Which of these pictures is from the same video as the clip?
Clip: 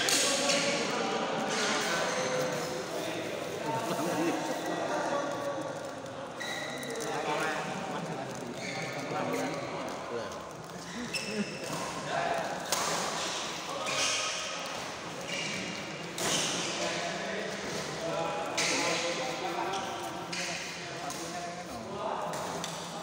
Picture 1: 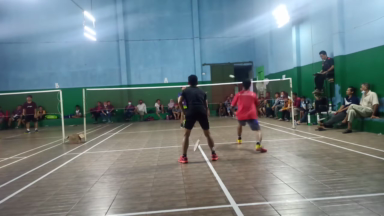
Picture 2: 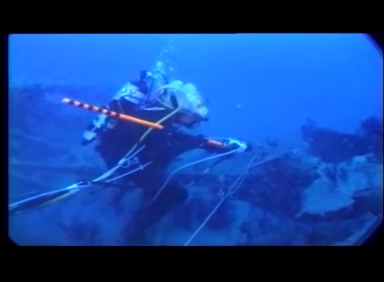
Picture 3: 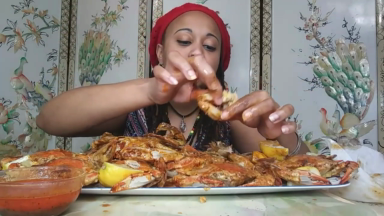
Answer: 1